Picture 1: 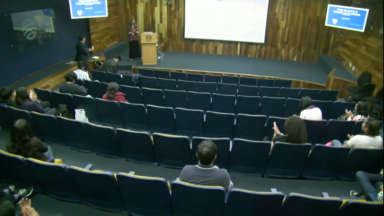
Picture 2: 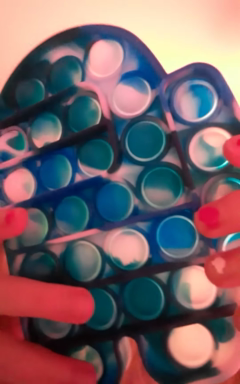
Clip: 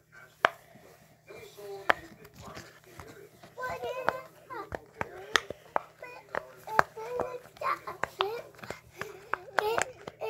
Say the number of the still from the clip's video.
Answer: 2